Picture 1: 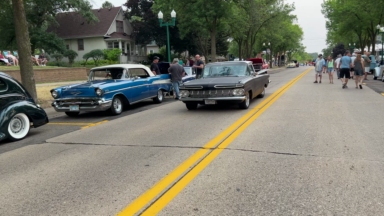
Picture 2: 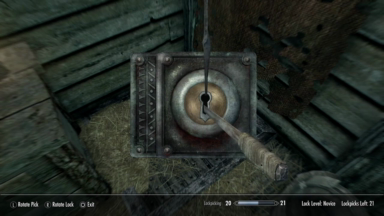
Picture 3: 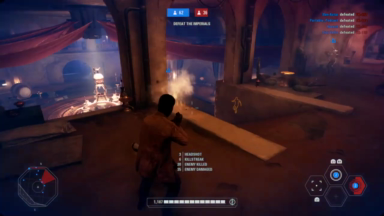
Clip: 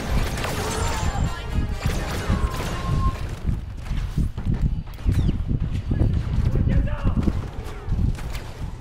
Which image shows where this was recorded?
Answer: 3